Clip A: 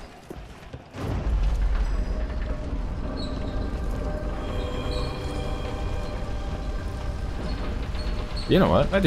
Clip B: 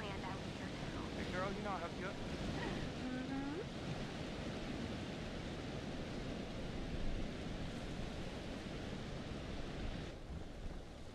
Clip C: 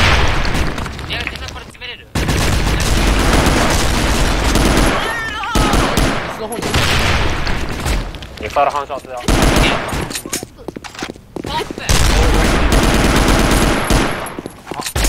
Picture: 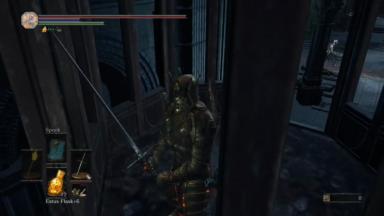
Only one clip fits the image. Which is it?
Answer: A